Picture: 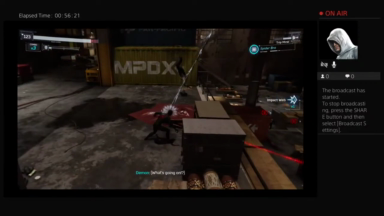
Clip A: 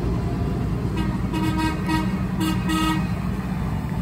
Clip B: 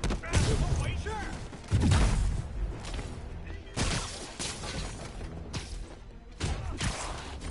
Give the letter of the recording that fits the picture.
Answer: B